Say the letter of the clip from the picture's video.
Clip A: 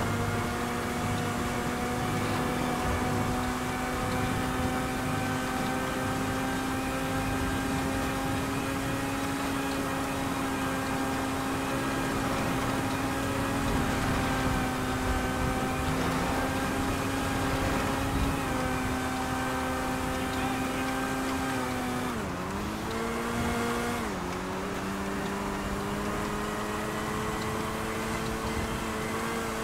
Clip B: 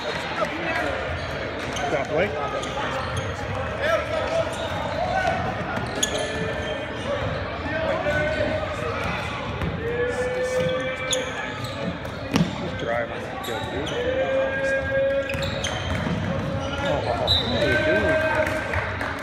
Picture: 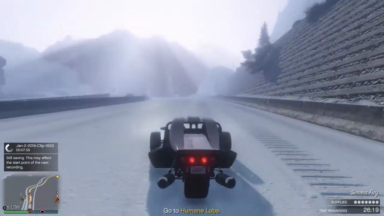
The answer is A